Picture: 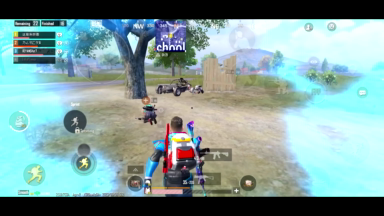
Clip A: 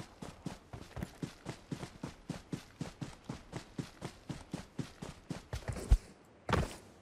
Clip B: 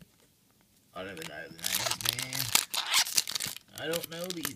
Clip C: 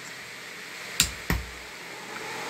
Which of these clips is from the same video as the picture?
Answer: A